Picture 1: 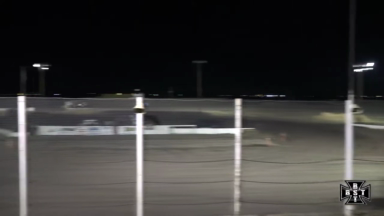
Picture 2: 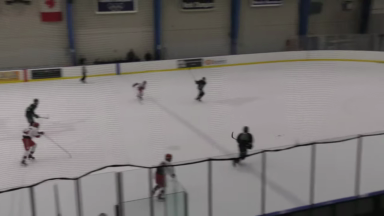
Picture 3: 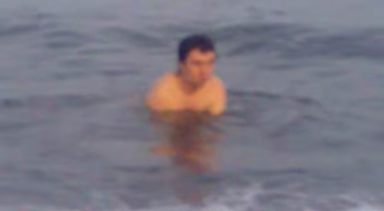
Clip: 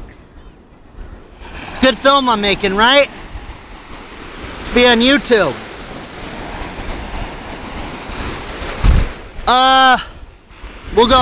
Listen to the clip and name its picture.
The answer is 3